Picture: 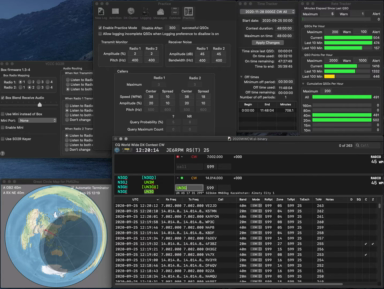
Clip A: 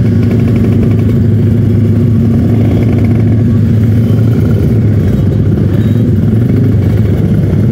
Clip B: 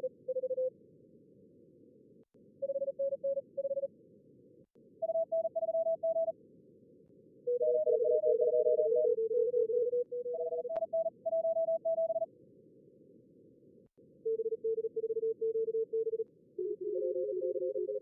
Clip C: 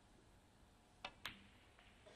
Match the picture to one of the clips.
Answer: B